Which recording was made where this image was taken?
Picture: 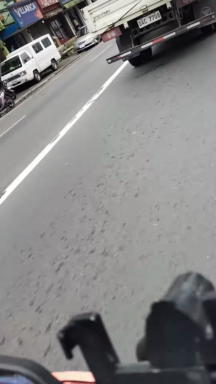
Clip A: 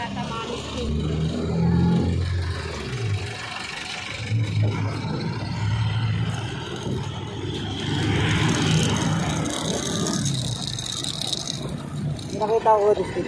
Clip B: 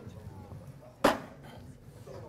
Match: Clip A